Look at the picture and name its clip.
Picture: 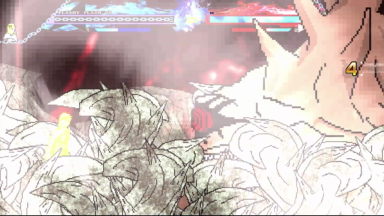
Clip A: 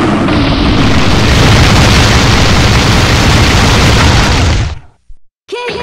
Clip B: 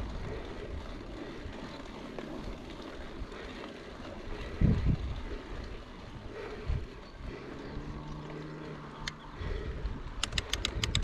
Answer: A